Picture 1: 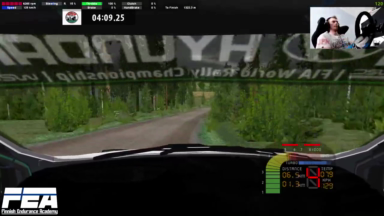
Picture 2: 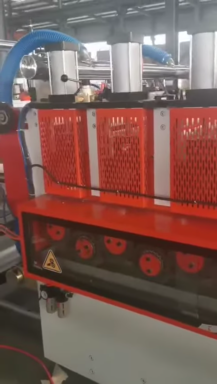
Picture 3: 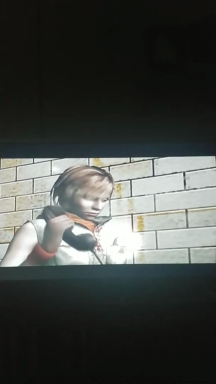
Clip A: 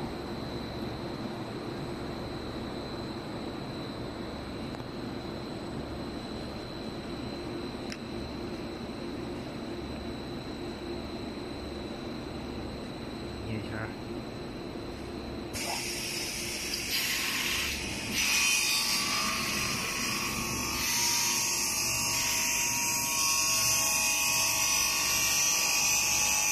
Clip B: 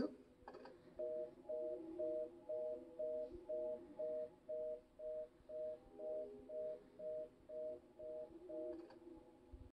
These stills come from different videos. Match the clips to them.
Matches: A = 2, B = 3